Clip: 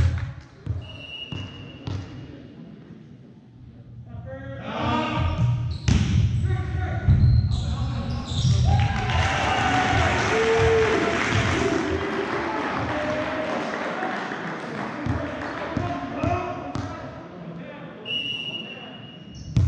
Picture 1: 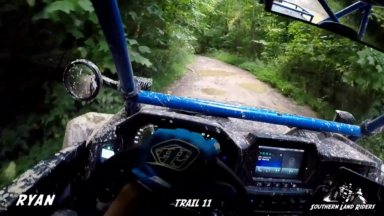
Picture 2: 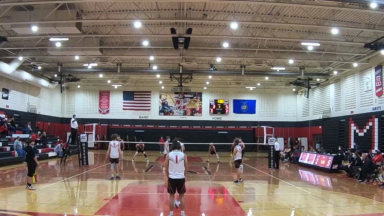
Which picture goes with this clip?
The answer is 2